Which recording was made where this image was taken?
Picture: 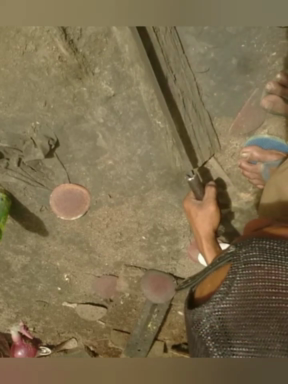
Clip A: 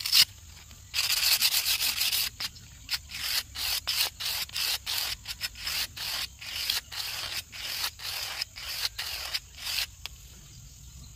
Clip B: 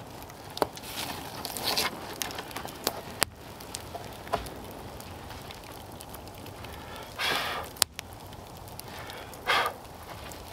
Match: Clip A